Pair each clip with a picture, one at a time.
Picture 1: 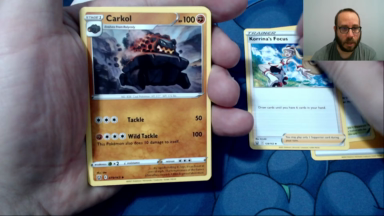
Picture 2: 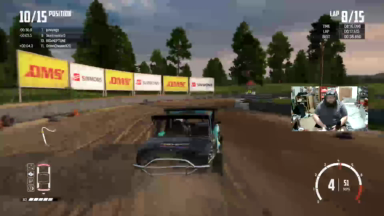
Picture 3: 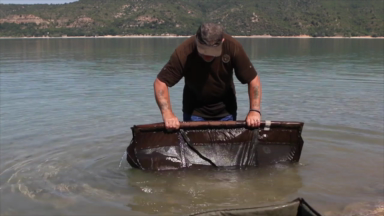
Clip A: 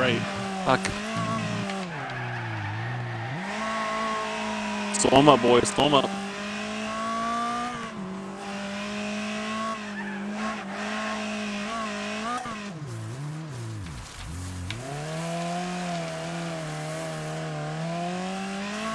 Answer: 2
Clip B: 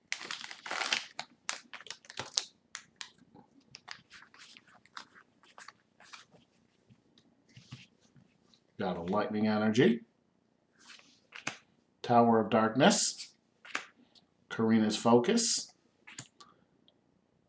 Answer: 1